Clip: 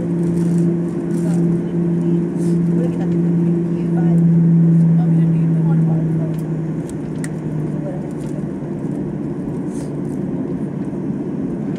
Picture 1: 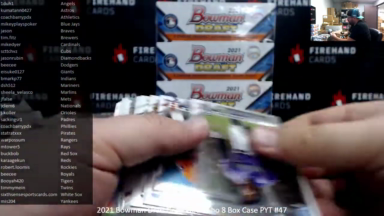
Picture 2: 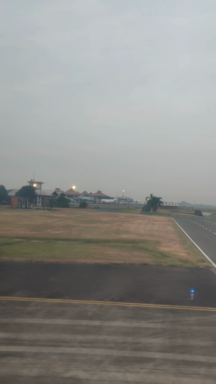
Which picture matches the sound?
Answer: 2